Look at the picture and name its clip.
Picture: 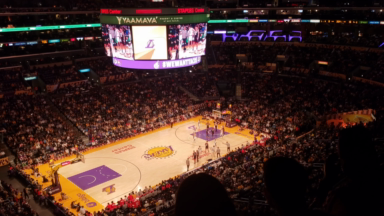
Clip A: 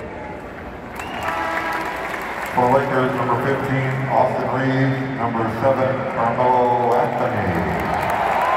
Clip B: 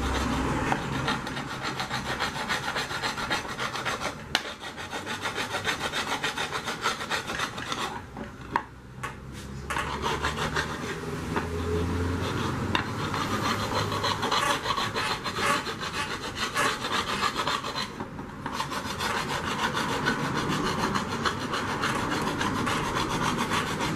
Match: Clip A